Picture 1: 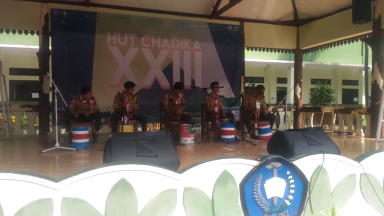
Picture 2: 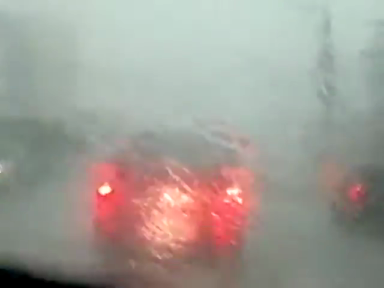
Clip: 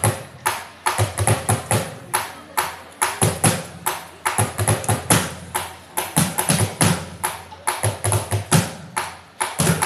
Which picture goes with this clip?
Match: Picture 1